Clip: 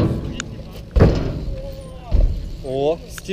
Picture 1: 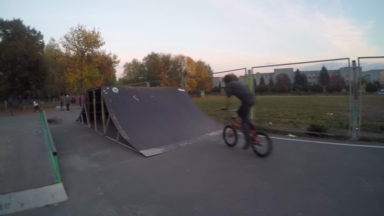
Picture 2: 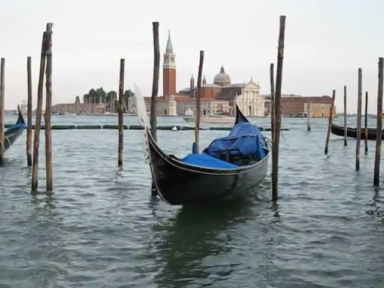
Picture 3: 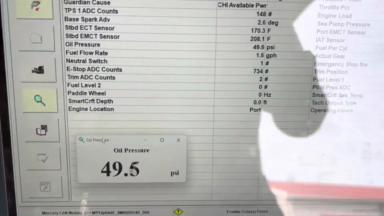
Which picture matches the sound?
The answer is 1